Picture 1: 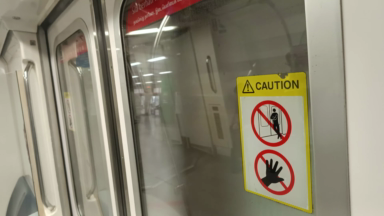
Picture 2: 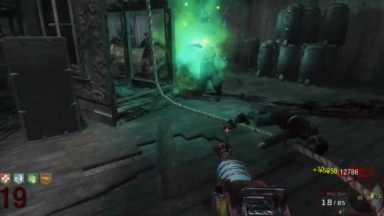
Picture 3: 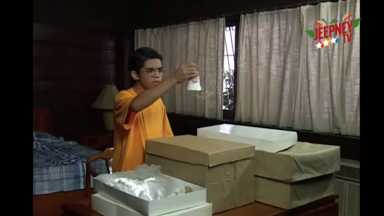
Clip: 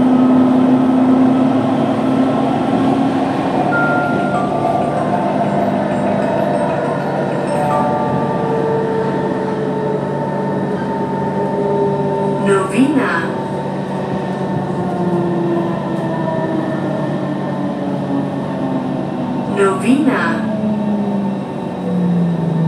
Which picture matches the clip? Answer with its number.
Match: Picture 1